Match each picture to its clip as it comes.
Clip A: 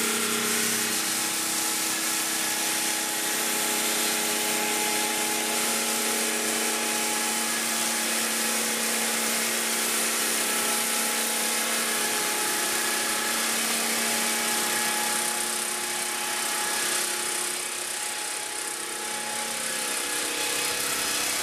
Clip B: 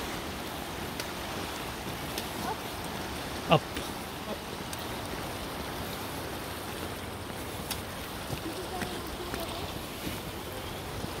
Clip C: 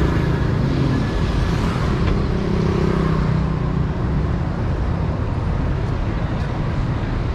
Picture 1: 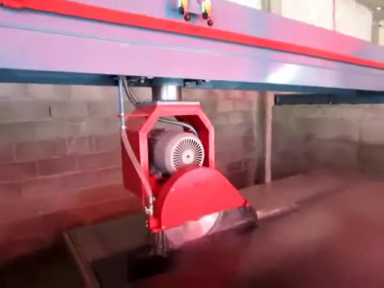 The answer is A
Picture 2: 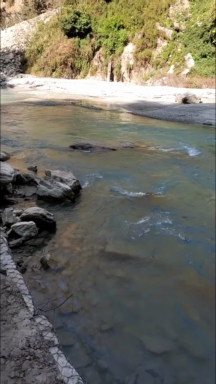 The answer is B